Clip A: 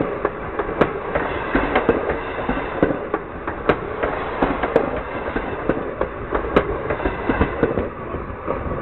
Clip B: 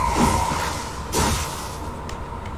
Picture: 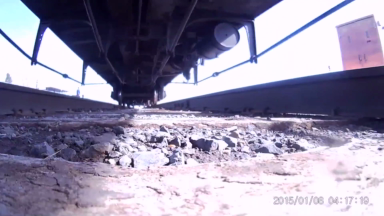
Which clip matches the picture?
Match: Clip A